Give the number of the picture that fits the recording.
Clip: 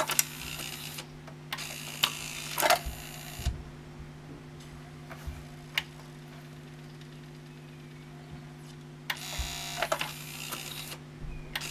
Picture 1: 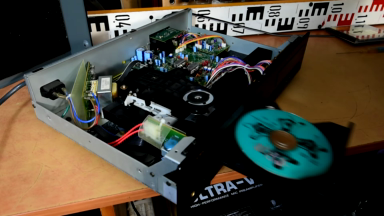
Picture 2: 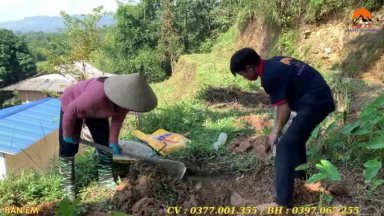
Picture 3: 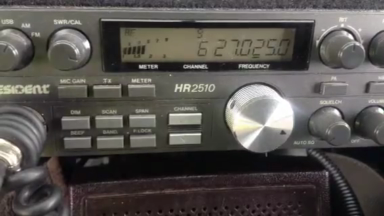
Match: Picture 1